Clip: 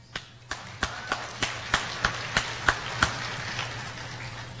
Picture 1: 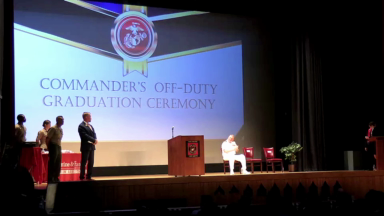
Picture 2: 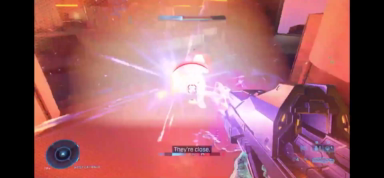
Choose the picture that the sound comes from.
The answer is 1